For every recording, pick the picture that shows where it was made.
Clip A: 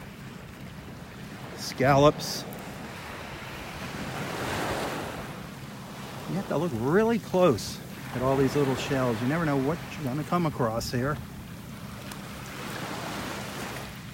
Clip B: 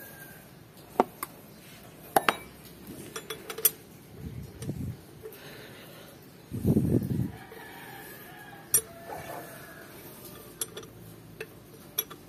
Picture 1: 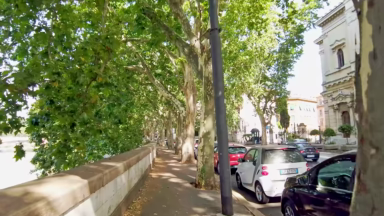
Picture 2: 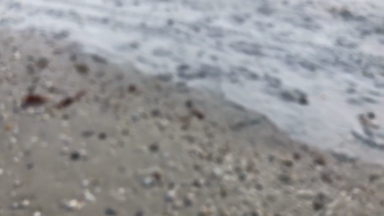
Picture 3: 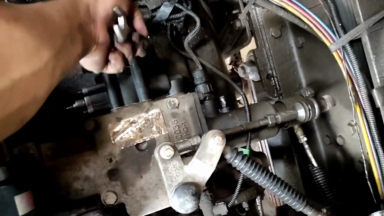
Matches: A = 2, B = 3